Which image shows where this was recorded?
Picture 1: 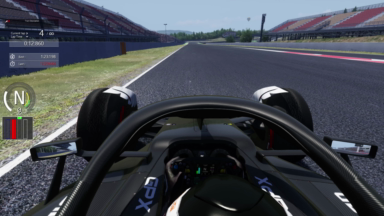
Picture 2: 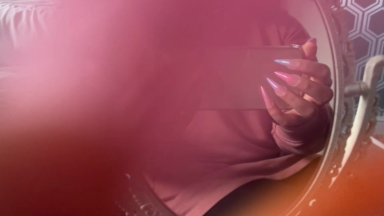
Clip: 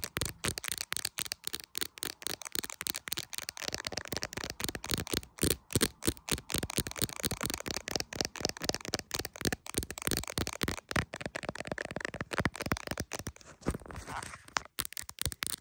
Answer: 2